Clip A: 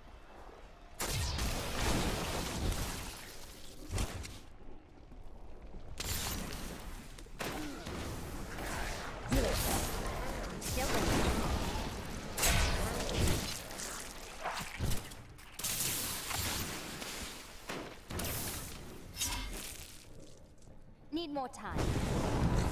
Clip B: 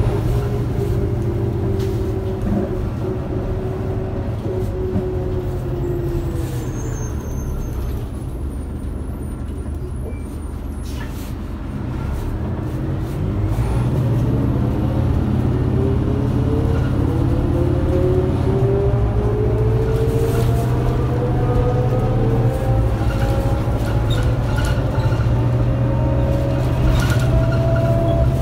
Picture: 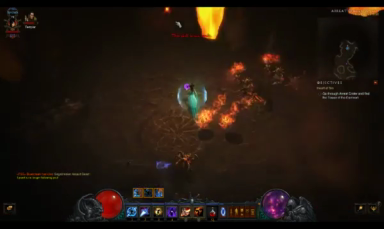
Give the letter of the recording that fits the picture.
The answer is A